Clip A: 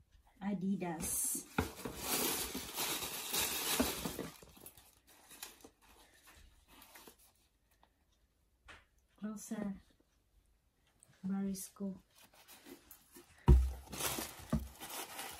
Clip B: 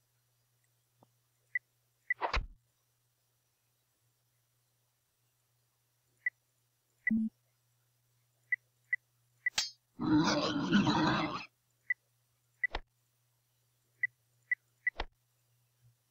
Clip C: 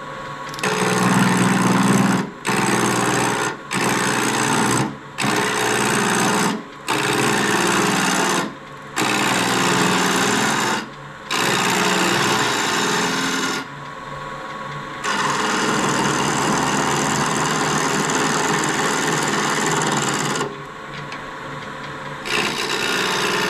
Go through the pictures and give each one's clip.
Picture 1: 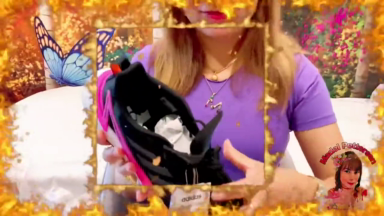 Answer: A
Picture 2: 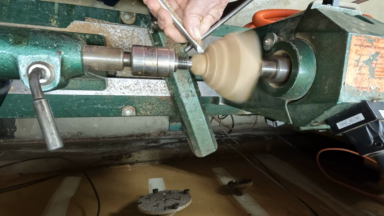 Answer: C